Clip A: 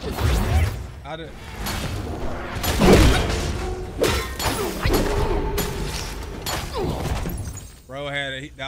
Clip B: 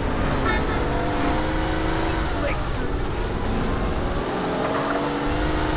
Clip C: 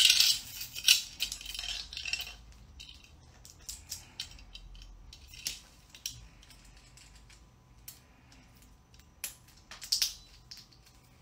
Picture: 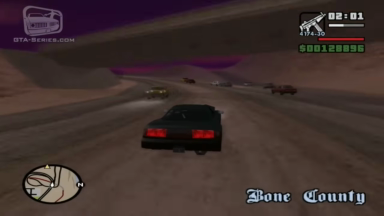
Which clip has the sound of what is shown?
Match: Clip B